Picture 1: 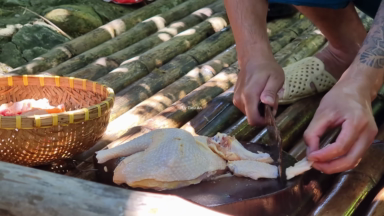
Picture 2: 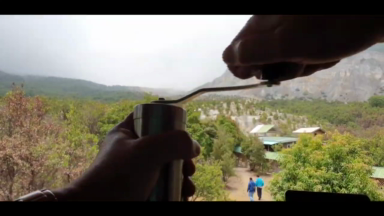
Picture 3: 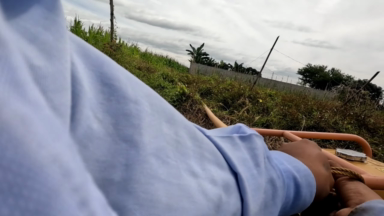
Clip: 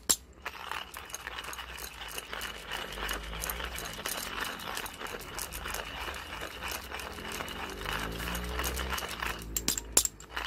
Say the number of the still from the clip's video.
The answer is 2